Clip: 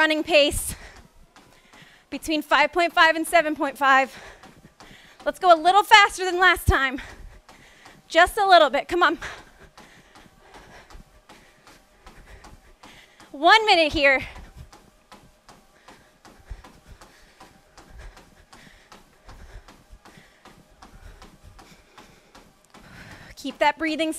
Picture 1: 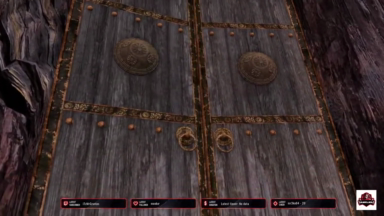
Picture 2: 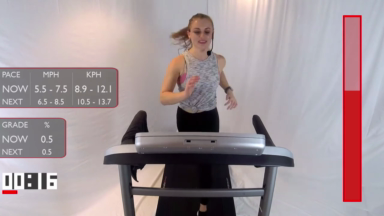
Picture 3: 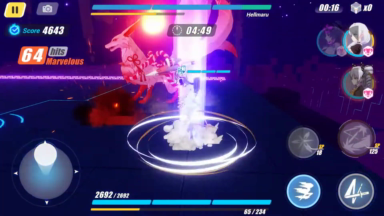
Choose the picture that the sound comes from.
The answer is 2